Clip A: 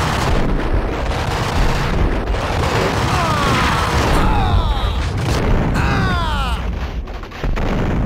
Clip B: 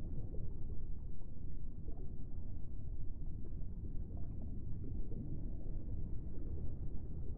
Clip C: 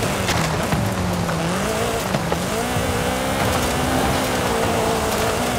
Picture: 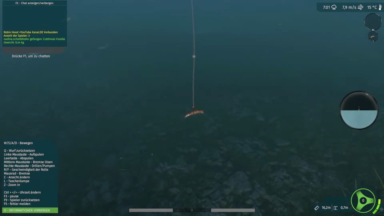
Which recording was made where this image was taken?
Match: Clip B